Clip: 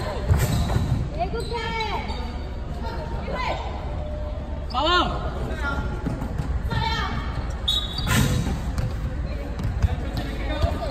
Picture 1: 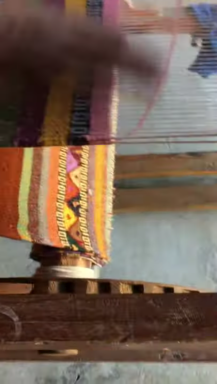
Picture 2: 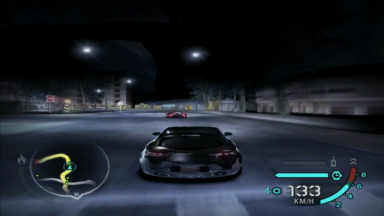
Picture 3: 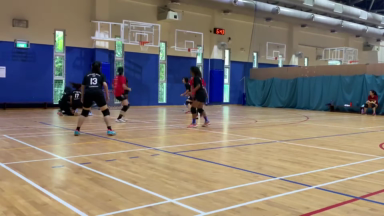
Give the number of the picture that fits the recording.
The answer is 3